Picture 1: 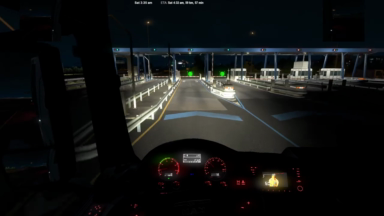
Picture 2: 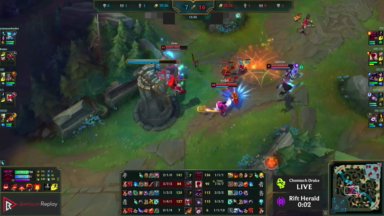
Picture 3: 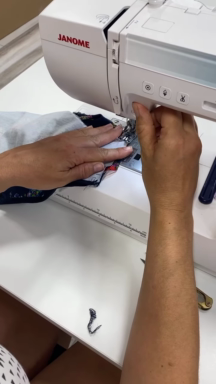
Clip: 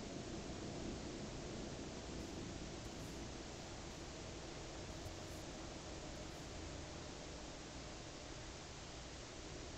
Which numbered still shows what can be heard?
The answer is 1